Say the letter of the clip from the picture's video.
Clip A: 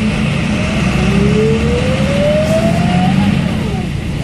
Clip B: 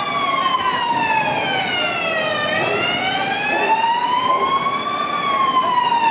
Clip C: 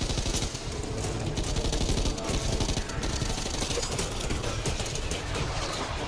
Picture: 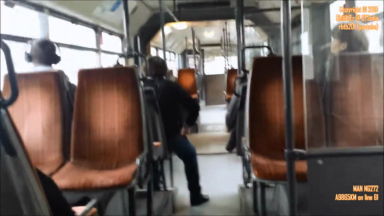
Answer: A